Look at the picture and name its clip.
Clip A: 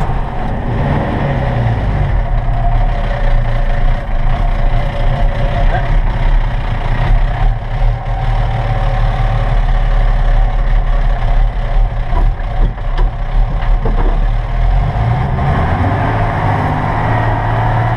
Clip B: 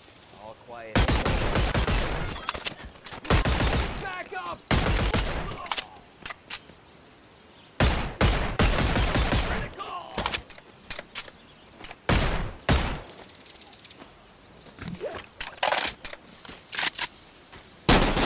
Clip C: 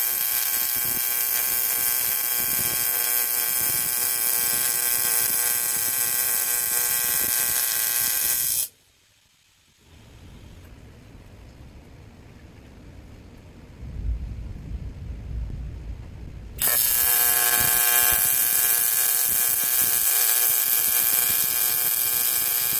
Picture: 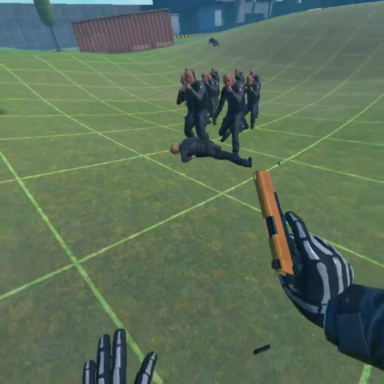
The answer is B